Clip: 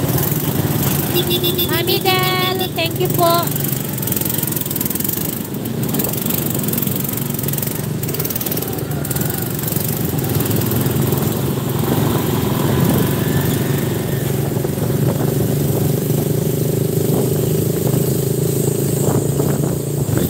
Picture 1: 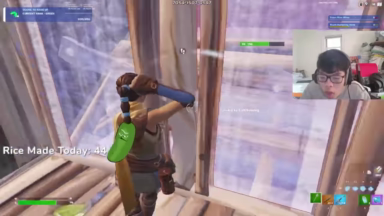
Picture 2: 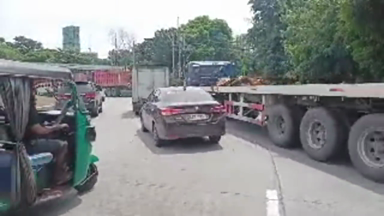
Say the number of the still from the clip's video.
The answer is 2